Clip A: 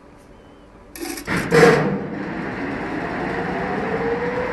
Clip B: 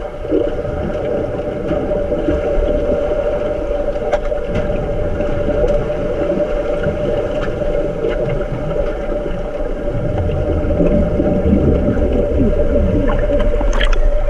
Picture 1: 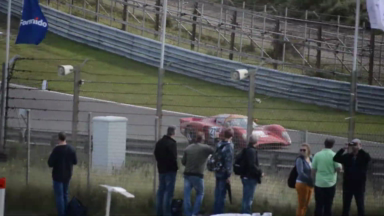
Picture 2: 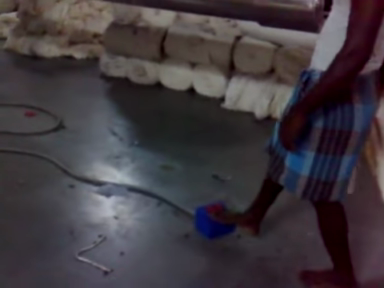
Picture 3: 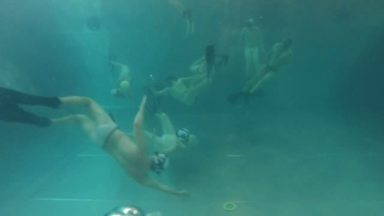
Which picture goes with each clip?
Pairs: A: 2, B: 3